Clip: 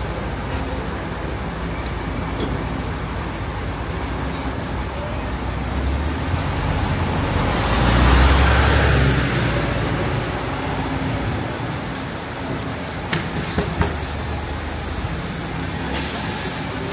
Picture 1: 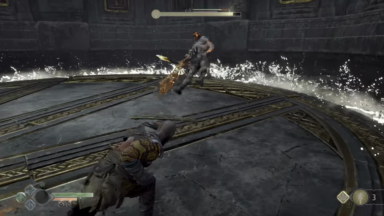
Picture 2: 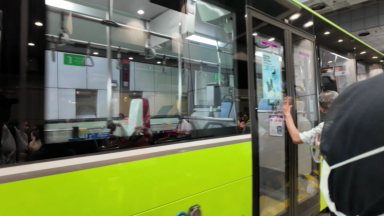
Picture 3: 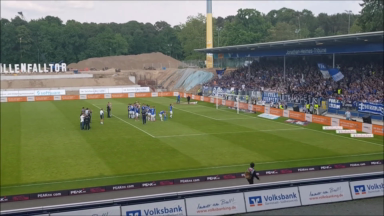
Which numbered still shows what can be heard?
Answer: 2